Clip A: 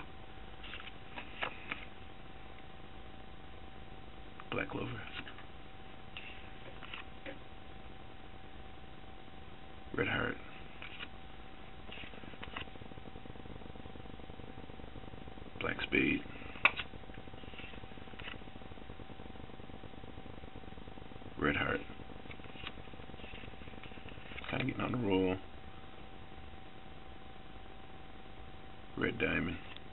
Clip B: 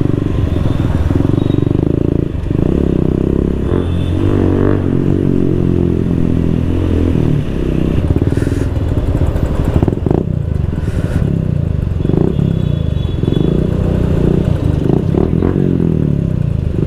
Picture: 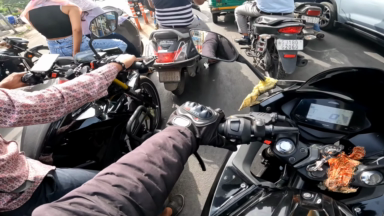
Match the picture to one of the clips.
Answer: B